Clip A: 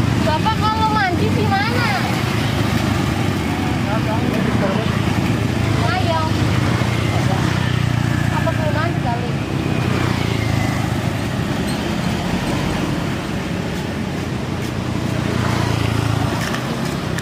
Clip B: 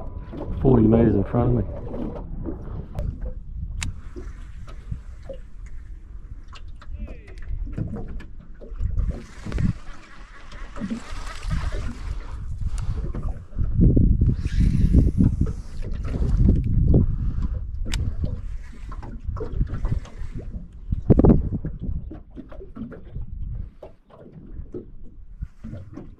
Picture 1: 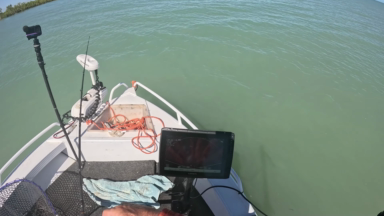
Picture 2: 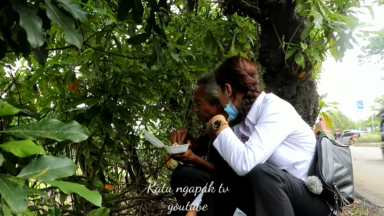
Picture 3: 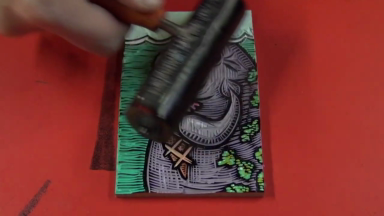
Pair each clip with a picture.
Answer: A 2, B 1